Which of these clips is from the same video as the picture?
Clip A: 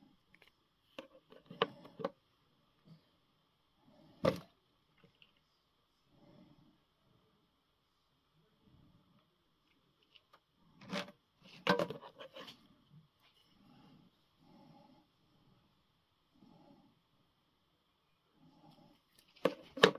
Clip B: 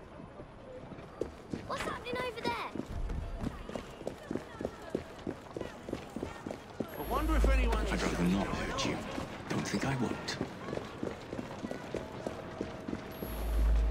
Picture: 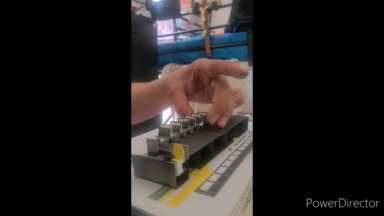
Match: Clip A